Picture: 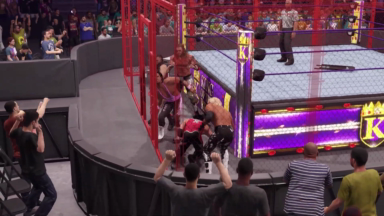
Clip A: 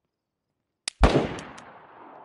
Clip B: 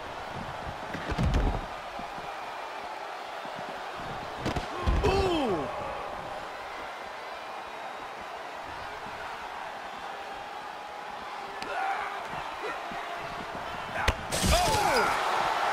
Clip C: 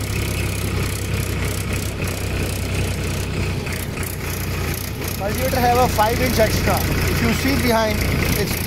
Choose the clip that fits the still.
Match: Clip B